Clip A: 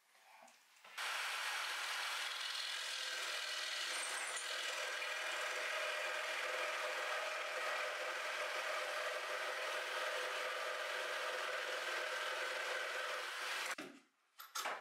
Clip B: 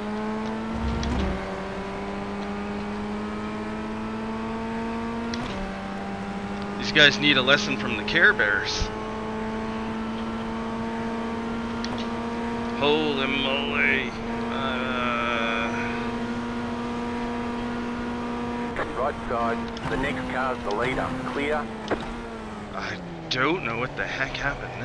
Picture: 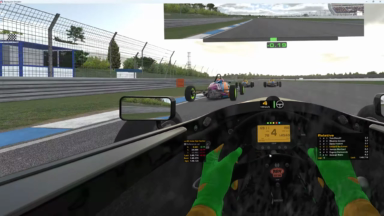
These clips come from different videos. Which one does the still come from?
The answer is B